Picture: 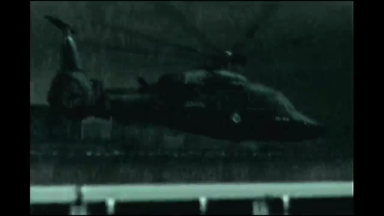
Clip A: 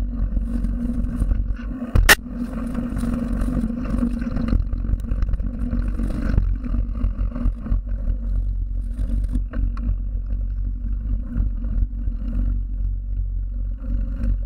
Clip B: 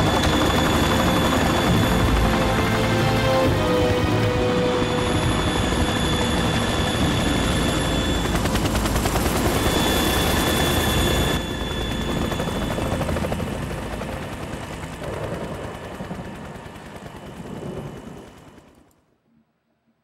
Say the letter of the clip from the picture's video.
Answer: B